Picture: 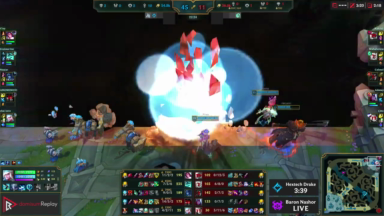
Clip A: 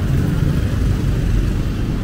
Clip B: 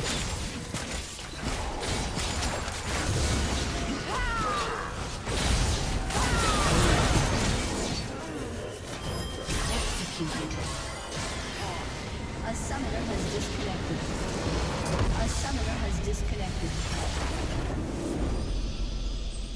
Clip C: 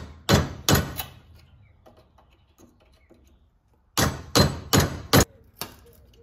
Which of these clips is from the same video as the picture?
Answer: B